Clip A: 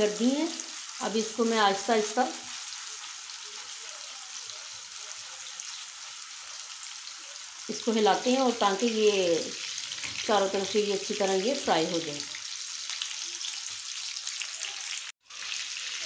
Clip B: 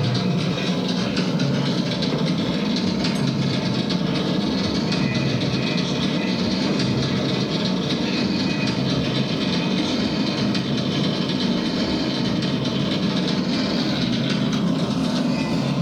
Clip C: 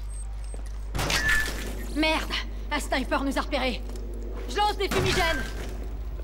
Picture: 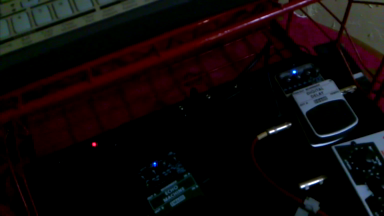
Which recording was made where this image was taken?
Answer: B